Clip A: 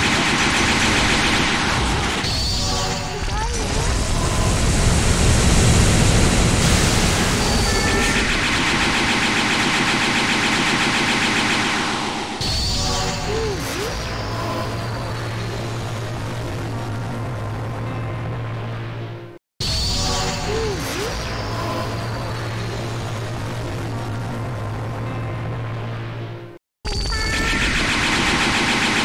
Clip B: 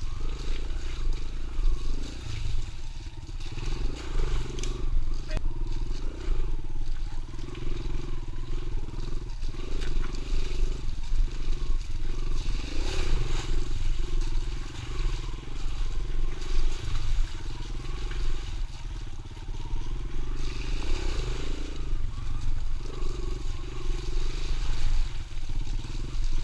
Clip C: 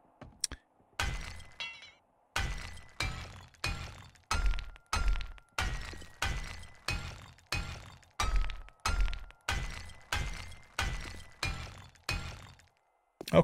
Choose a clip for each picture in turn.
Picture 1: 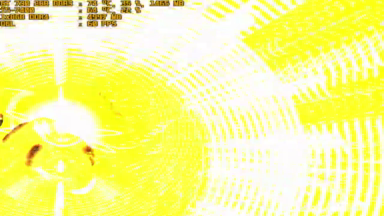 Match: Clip A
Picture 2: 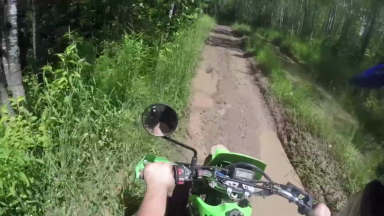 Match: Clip B